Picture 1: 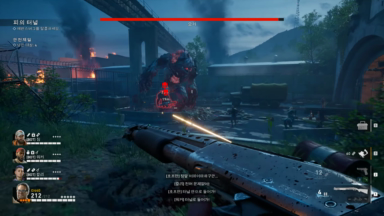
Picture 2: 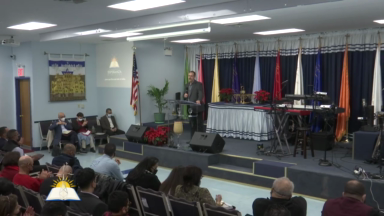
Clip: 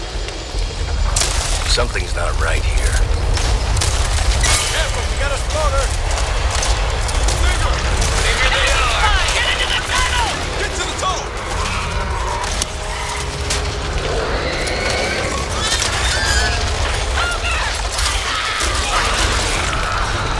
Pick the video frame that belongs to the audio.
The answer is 1